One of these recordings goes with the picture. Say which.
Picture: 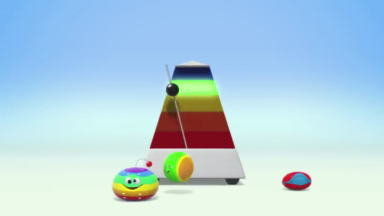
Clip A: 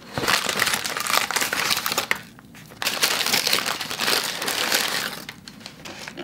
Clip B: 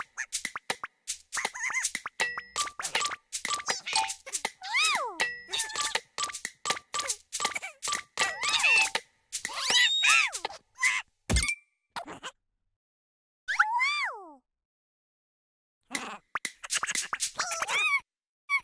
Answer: B